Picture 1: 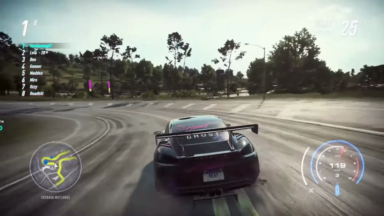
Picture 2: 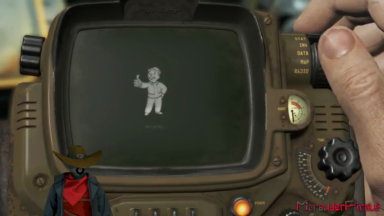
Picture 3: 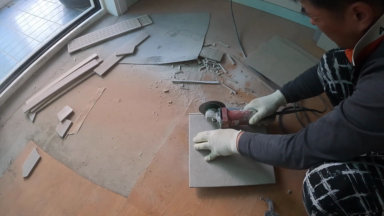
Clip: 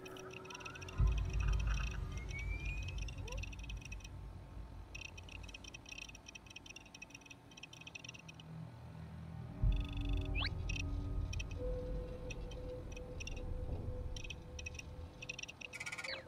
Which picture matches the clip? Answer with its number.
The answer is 2